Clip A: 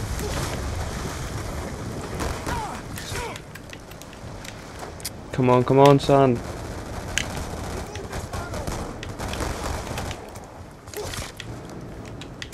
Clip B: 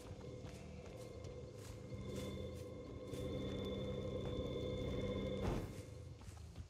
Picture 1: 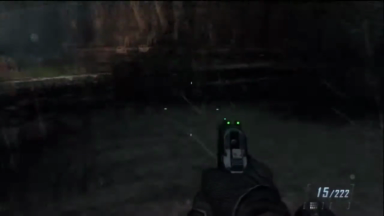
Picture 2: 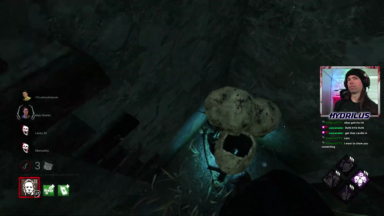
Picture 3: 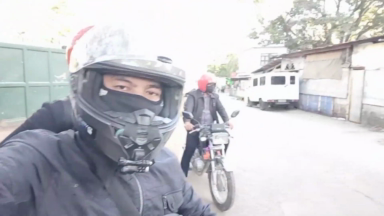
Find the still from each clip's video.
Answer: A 1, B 2